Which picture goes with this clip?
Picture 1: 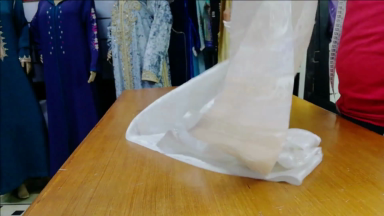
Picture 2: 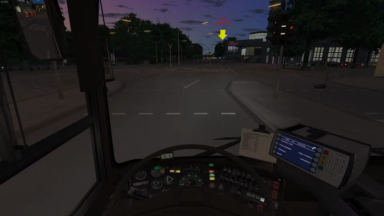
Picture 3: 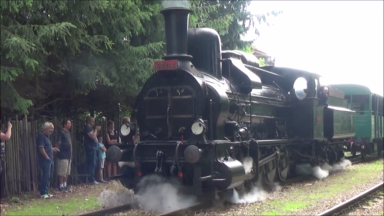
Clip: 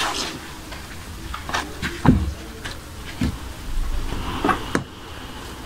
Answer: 1